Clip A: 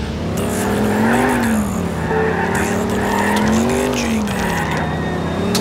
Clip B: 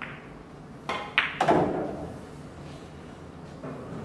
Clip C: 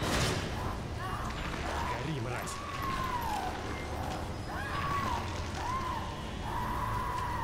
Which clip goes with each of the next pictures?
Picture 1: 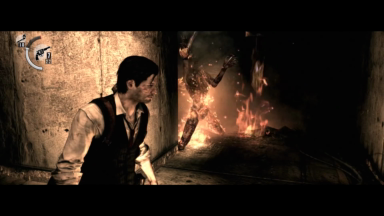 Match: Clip C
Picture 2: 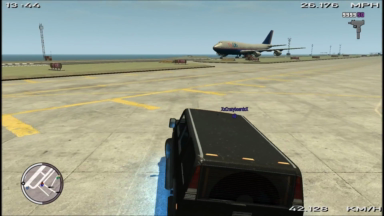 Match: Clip A